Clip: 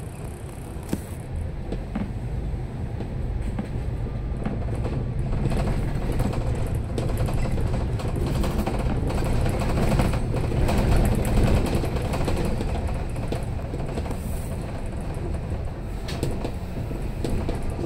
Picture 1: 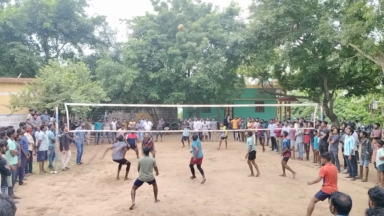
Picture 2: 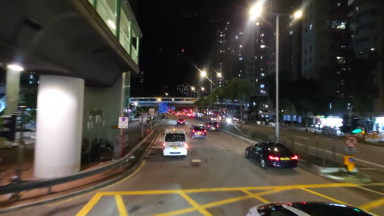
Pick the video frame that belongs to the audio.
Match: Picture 2